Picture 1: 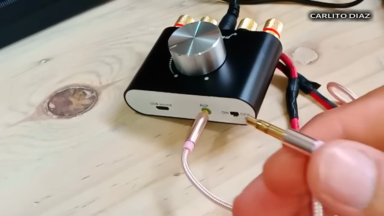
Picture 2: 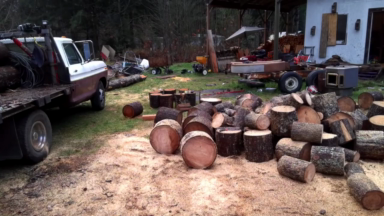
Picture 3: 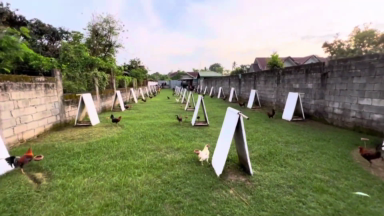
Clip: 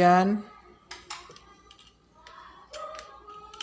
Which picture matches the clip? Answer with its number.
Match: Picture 1